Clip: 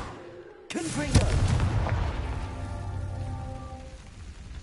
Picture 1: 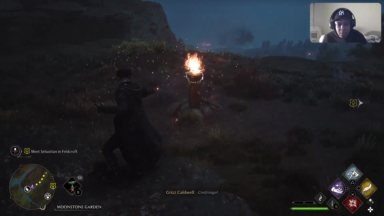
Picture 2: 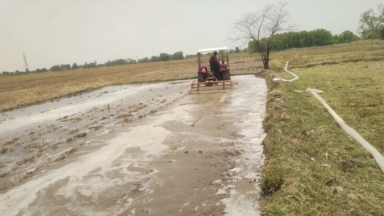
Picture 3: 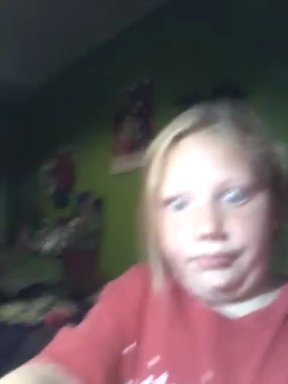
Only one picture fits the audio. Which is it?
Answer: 1